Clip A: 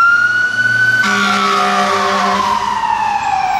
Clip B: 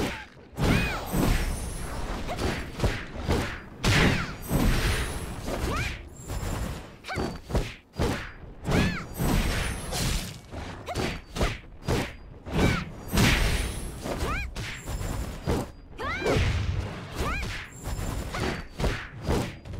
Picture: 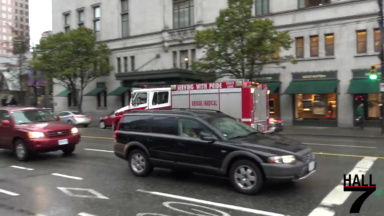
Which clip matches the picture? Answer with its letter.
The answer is A